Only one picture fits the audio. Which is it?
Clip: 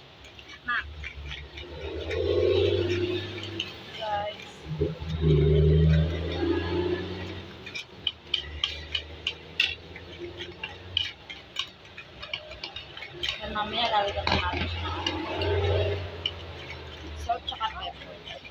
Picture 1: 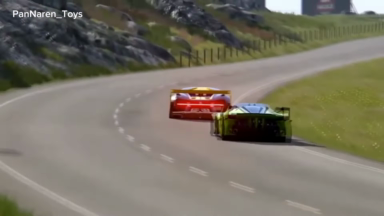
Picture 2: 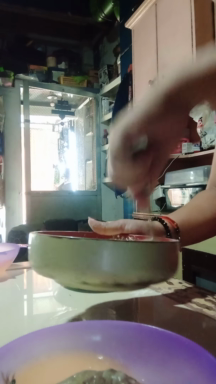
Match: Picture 2